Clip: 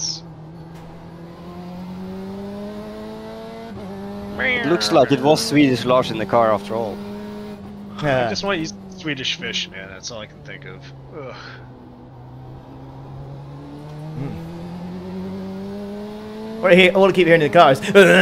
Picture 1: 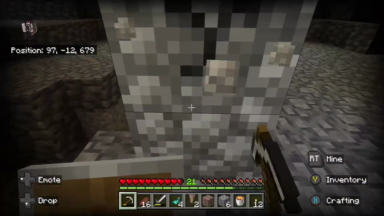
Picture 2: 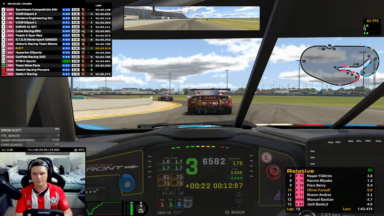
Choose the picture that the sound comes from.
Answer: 2